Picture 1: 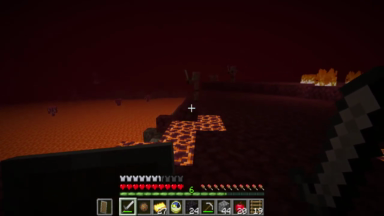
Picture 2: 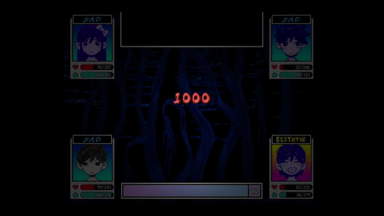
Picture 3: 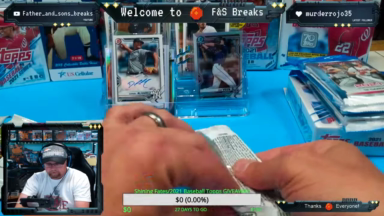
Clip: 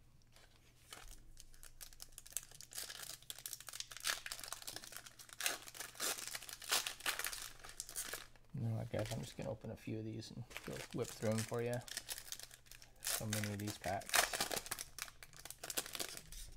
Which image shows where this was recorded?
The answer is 3